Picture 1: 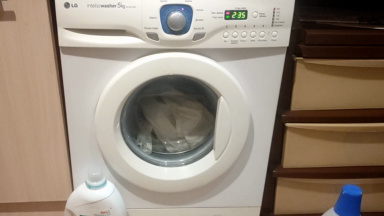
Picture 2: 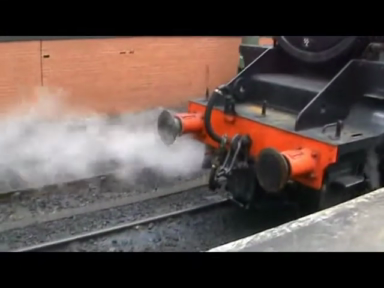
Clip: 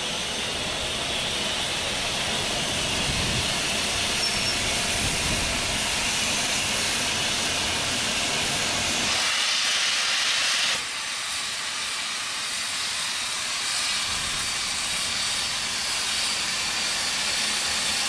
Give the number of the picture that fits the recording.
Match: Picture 2